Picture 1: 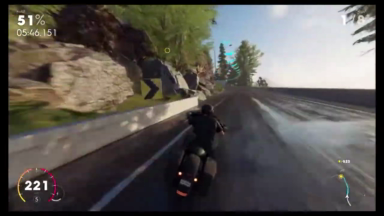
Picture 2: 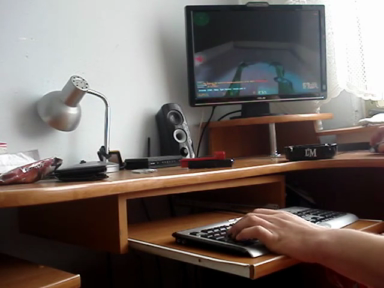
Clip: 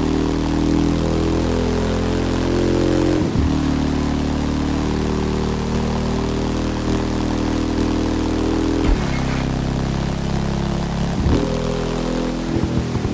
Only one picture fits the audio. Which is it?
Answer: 1